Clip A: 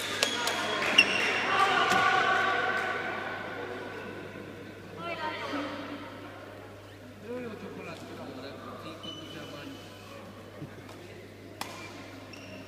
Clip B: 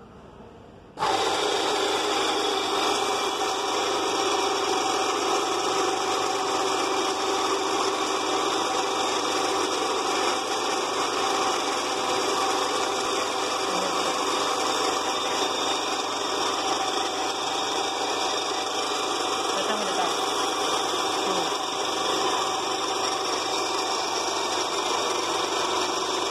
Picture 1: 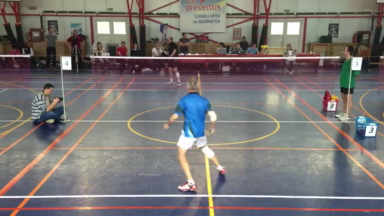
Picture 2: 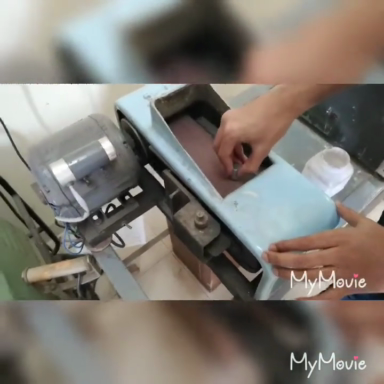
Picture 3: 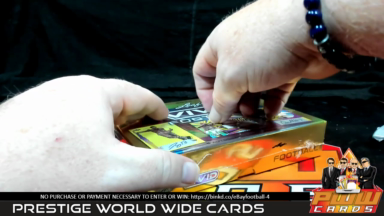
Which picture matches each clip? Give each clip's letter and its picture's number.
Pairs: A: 1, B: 2